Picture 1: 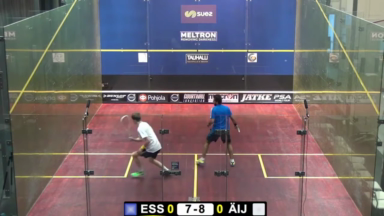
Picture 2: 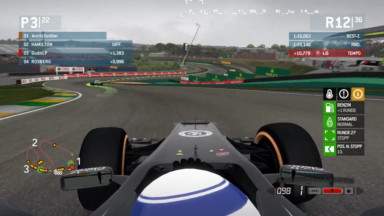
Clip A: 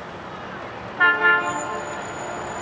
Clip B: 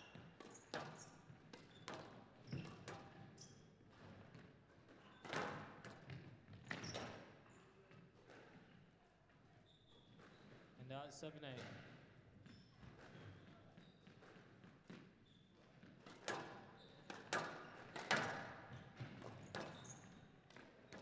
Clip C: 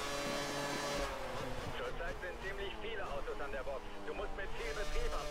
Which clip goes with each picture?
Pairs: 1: B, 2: C